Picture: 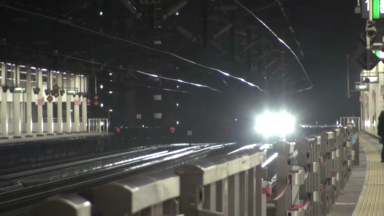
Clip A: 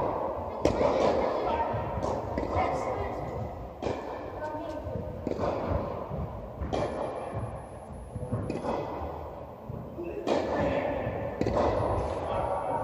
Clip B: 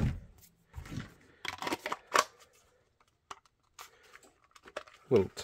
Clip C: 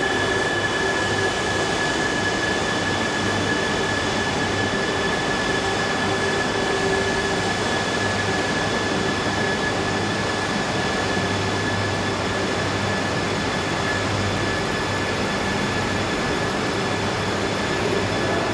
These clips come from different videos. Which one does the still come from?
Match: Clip C